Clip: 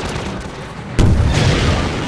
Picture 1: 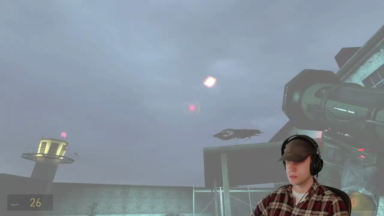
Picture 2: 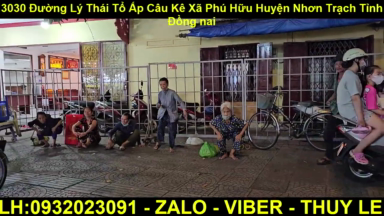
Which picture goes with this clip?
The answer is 1